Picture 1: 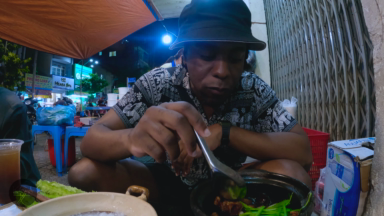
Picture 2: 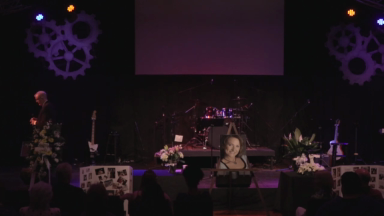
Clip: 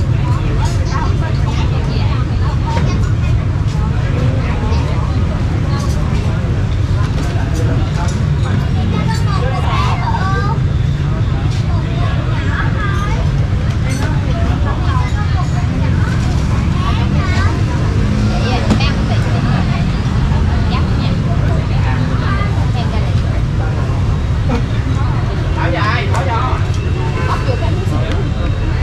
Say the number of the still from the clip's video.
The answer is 1